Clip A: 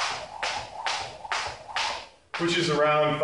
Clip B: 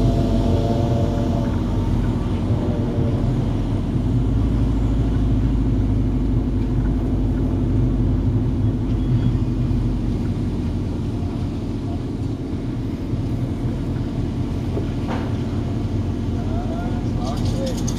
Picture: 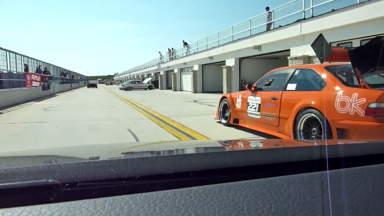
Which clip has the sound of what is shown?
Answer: B